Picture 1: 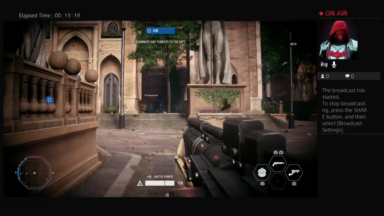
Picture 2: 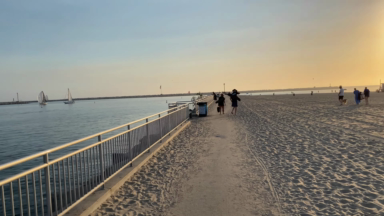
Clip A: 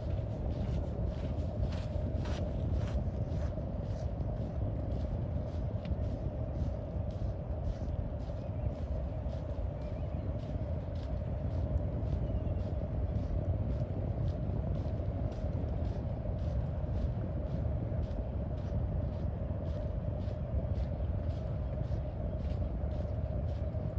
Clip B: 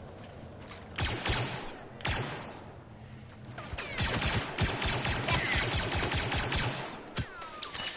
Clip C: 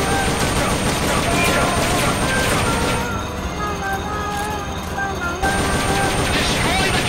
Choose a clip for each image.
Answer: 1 B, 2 A